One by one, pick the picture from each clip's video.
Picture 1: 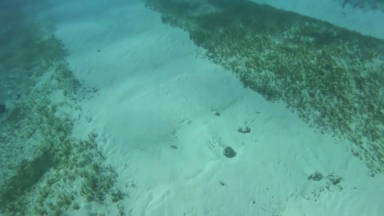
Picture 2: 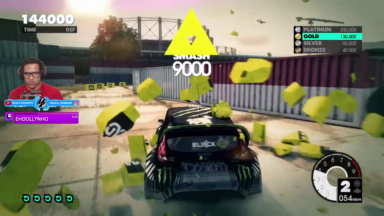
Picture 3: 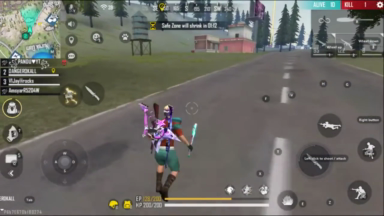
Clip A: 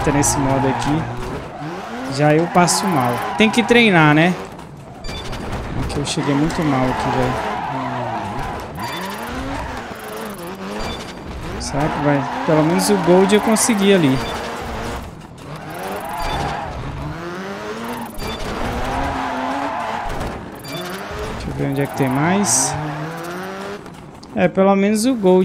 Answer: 2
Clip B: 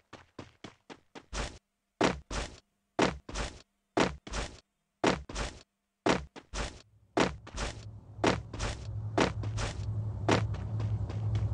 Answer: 3